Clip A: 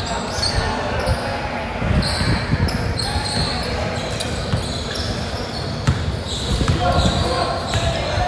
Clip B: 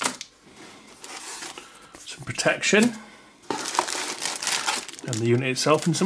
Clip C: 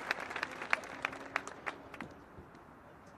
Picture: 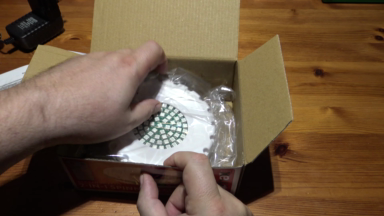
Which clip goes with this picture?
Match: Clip B